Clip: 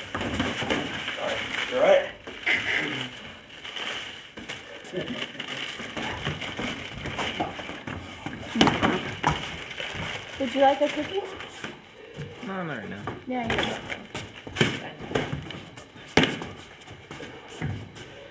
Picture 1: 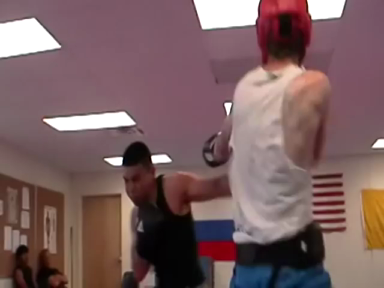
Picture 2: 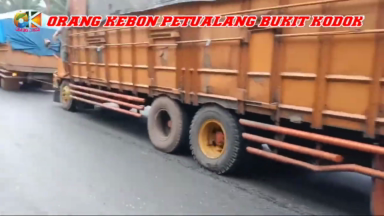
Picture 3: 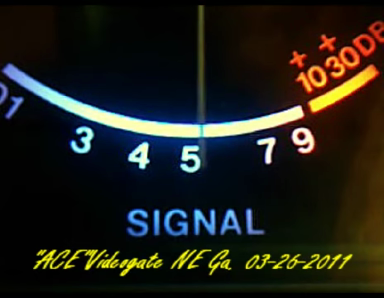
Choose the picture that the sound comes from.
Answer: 1